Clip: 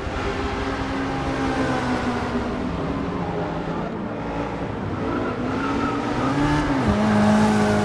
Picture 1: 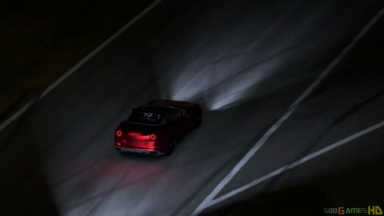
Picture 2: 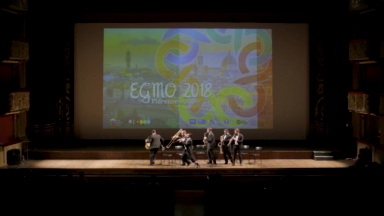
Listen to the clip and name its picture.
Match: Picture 1